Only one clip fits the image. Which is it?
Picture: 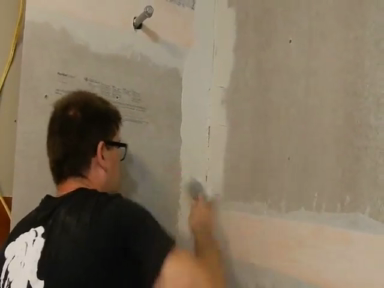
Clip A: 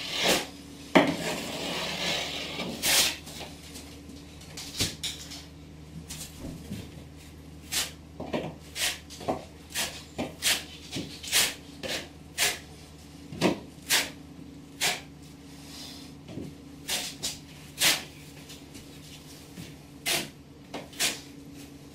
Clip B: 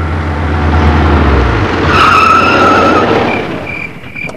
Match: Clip A